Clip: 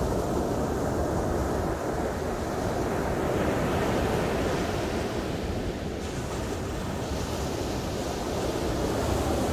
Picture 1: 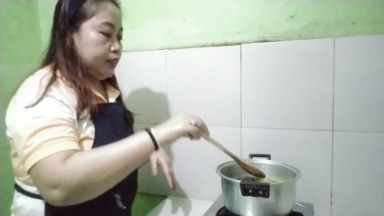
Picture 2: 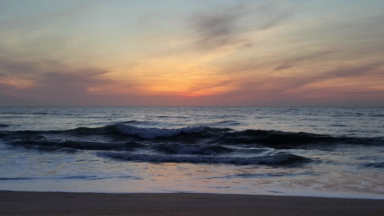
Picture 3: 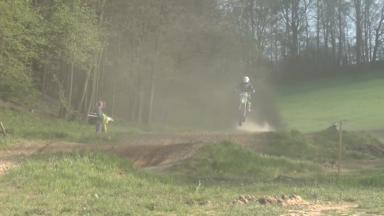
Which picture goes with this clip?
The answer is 2